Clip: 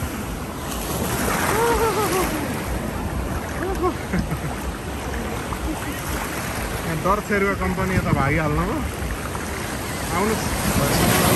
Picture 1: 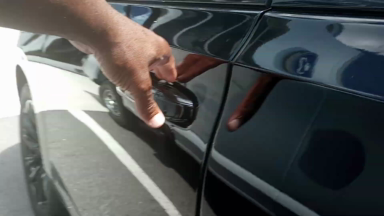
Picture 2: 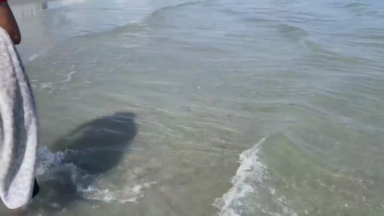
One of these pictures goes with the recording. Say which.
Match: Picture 2